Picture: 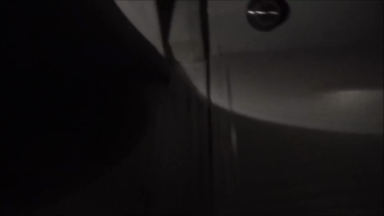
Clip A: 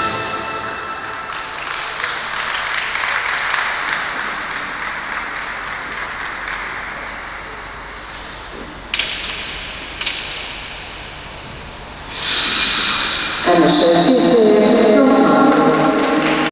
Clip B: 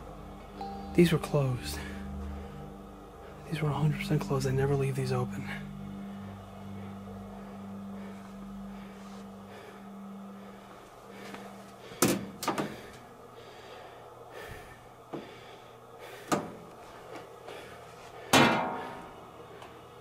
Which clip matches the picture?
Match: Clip B